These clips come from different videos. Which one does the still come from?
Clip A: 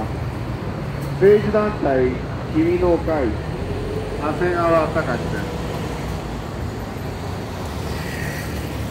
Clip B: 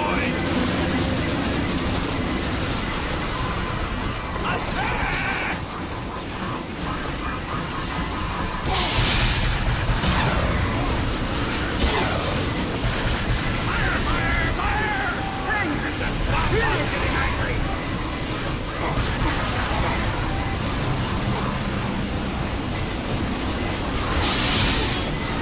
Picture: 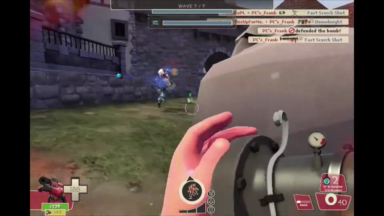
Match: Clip B